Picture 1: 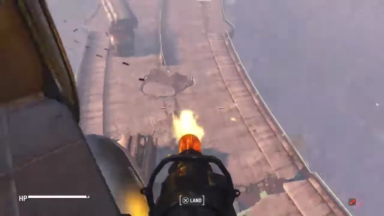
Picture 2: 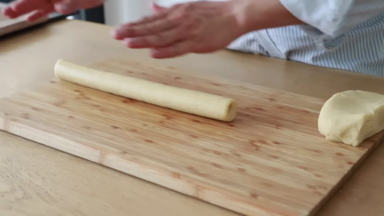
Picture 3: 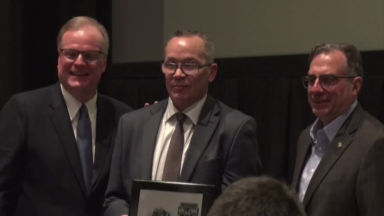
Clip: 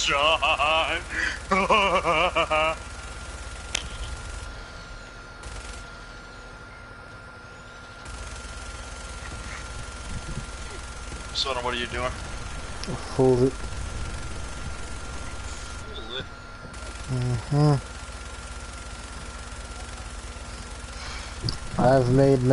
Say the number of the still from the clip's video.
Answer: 1